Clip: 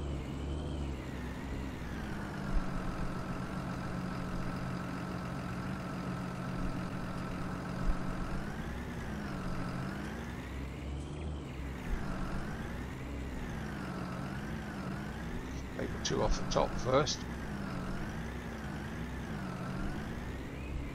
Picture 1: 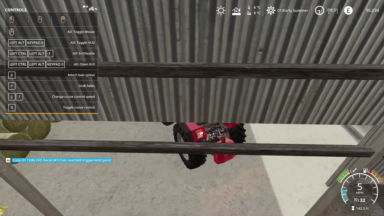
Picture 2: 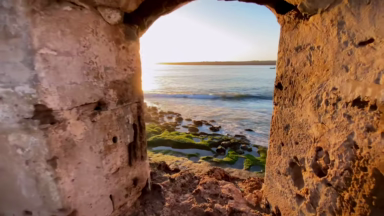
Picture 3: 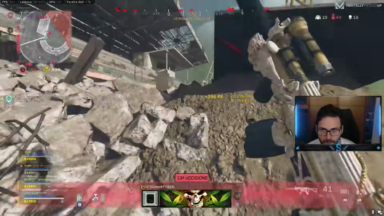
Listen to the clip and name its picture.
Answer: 1